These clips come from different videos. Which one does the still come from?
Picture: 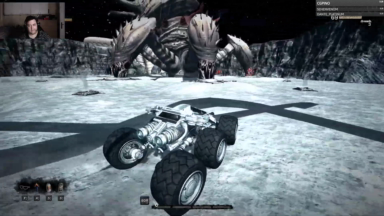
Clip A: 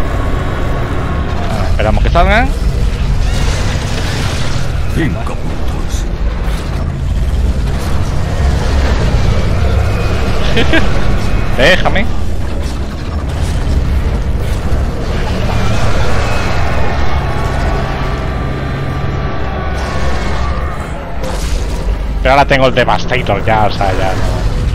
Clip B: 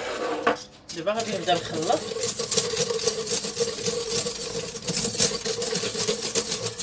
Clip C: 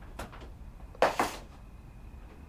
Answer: A